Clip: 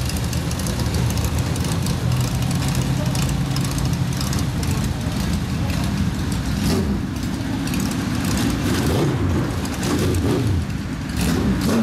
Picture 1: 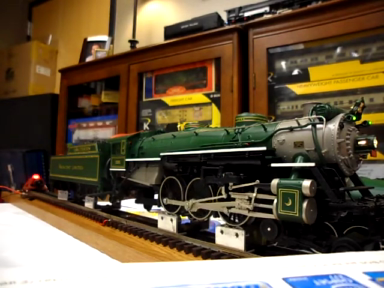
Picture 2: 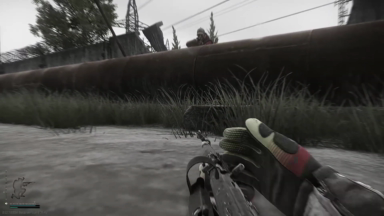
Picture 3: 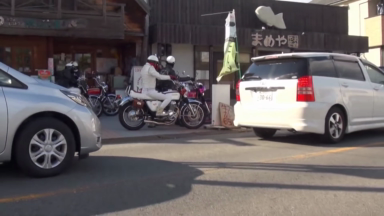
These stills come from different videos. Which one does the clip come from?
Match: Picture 3